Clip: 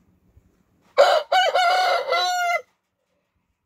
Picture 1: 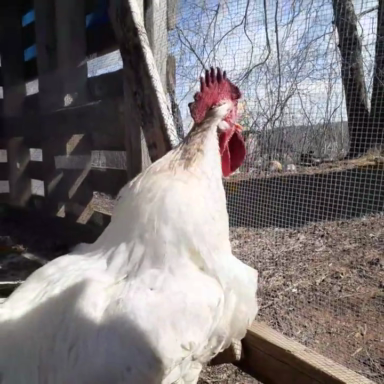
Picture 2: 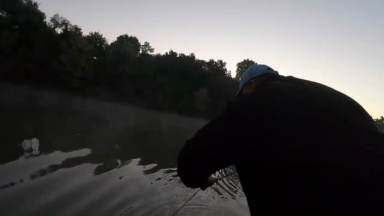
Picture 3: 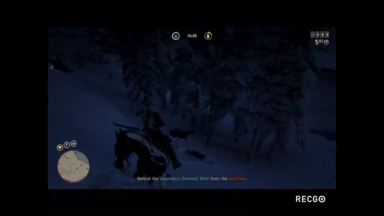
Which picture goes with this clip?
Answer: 1